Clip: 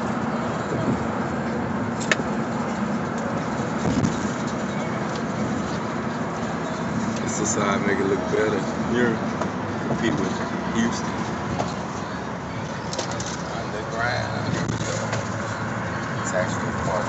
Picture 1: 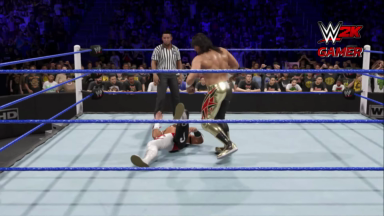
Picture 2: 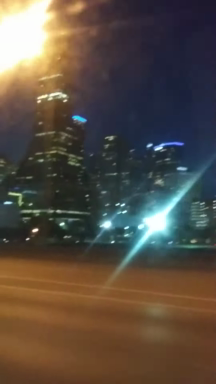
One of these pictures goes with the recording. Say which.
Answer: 2